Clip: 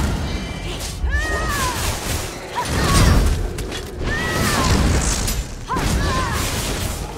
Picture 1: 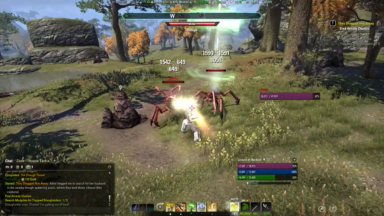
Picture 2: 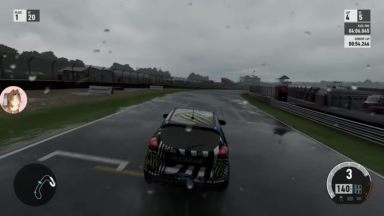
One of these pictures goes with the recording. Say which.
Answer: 1